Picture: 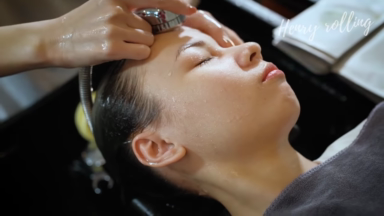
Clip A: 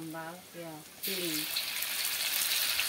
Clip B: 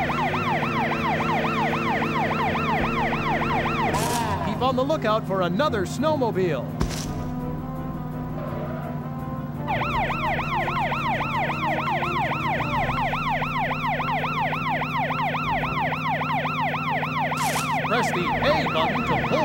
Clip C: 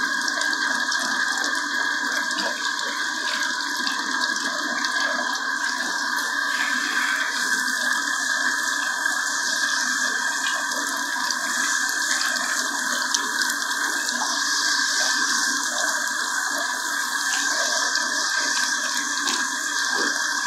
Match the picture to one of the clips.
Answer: C